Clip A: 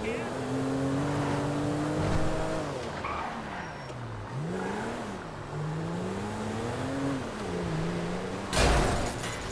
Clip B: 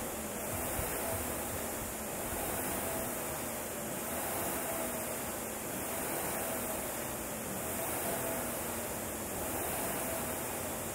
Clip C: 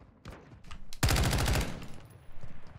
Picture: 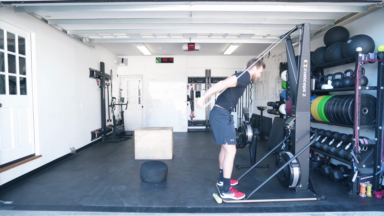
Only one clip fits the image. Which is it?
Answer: B